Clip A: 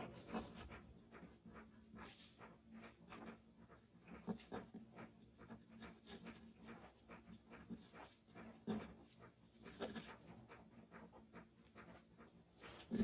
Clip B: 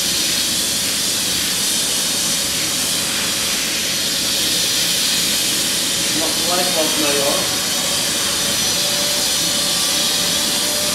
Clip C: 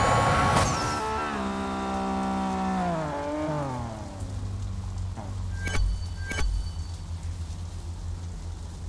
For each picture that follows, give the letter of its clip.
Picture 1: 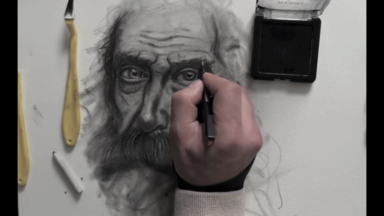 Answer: A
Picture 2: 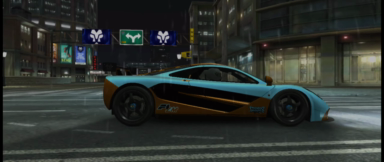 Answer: C